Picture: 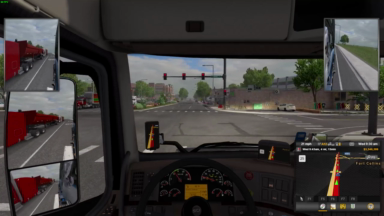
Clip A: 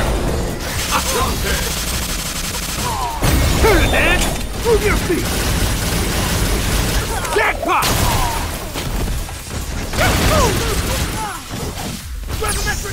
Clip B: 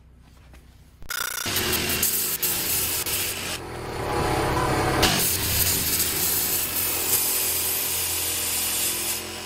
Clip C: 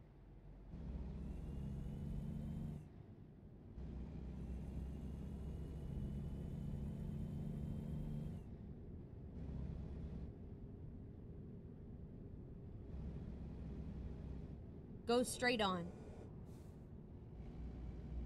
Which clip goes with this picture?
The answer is C